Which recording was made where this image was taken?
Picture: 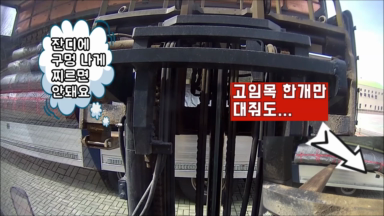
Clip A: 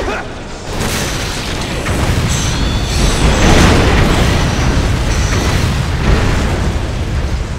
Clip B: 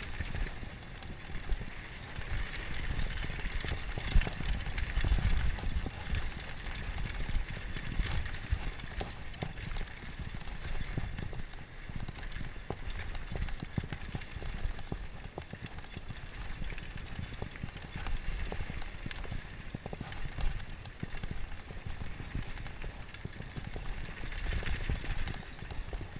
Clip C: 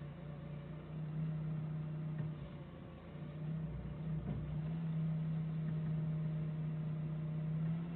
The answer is C